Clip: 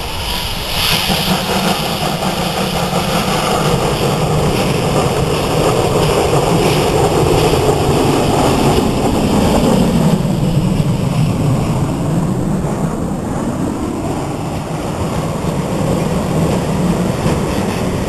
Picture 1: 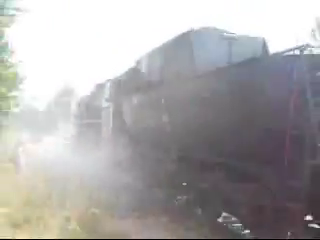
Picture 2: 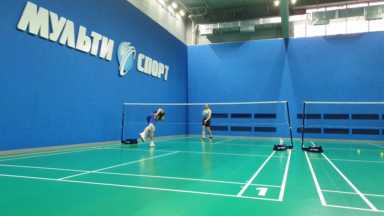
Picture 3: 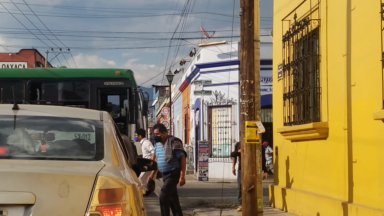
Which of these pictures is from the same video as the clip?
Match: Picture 1